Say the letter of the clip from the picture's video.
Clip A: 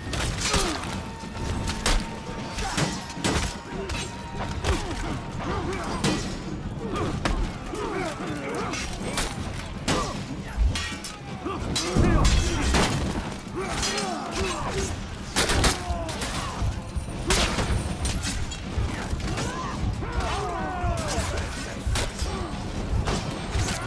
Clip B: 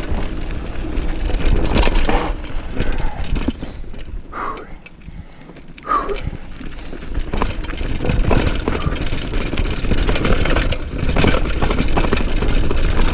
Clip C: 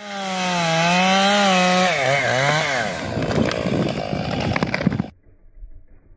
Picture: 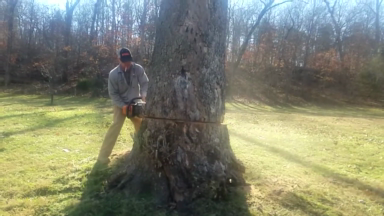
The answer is C